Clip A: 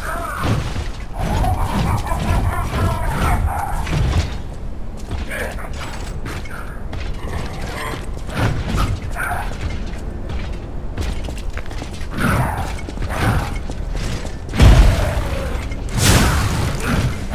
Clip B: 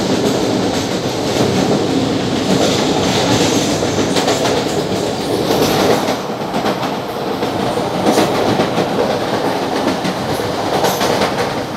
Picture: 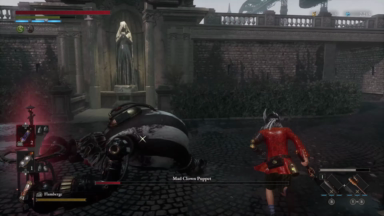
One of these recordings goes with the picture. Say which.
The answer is A